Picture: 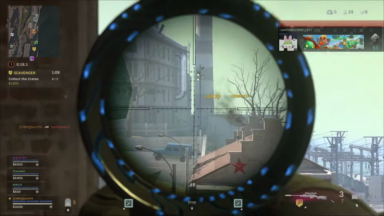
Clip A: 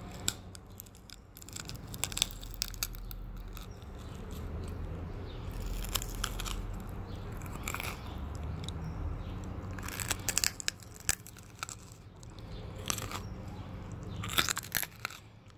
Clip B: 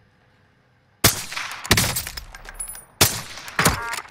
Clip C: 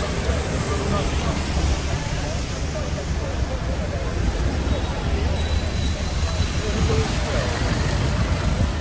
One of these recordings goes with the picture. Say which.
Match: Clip B